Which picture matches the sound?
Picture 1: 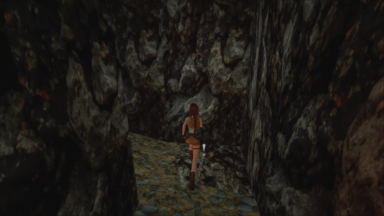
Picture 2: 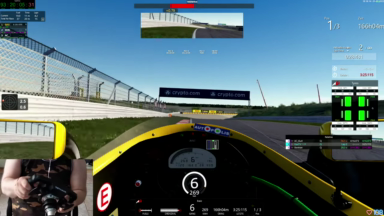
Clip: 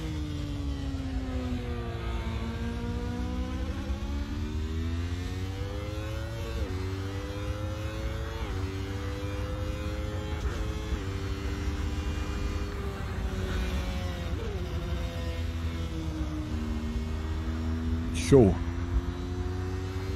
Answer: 2